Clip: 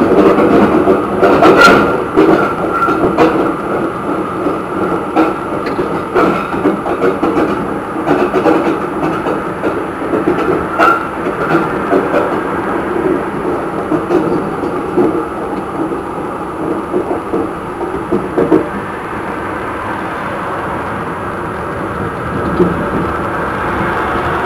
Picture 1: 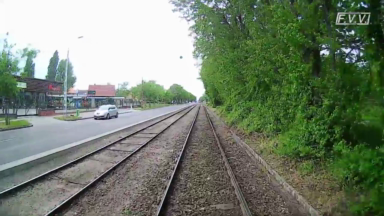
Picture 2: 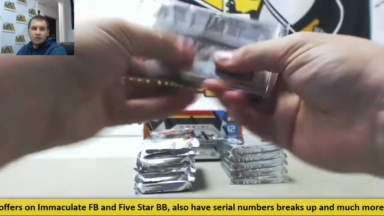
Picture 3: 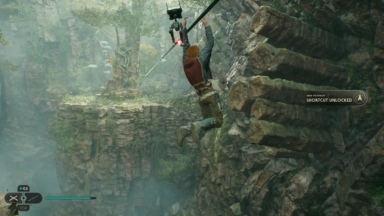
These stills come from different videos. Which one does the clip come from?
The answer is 1